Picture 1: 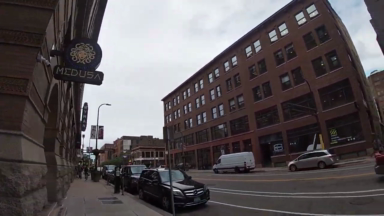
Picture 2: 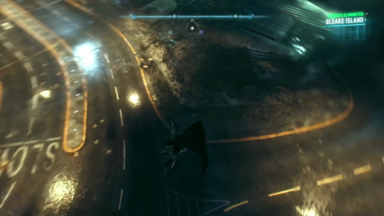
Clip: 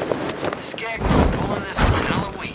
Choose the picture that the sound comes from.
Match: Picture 2